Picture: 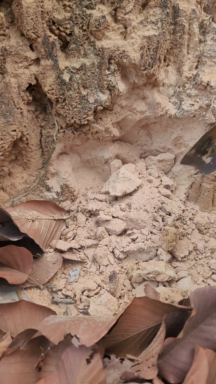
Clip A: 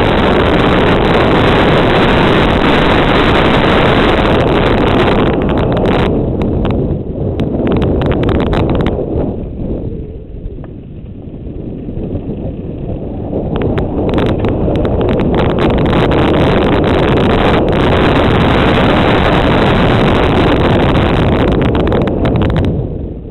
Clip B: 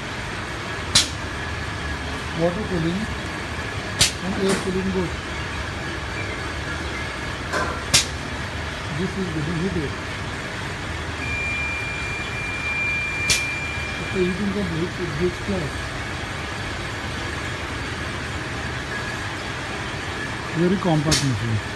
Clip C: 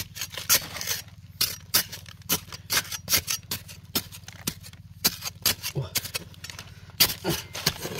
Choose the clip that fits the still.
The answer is C